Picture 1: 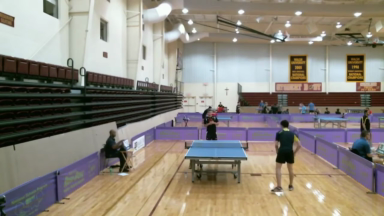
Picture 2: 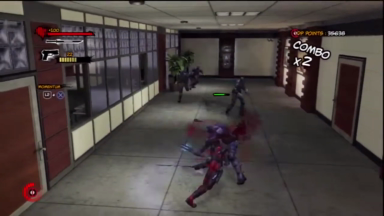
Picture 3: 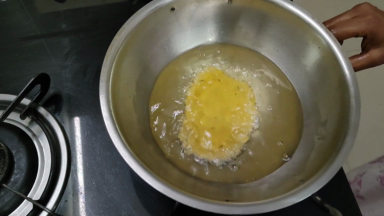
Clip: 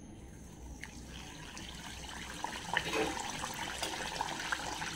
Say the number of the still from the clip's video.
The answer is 3